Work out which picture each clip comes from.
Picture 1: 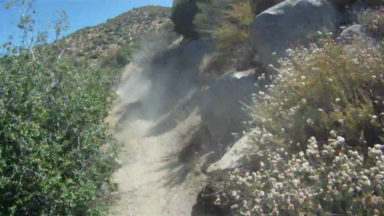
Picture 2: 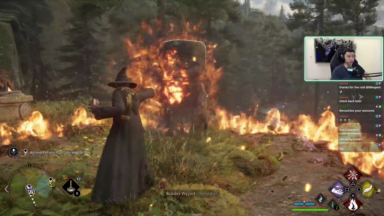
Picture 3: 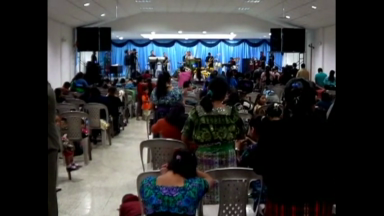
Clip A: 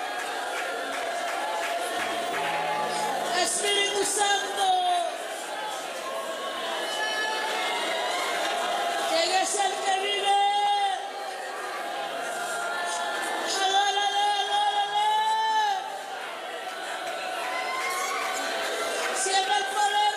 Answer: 3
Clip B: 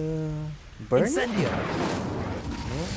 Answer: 2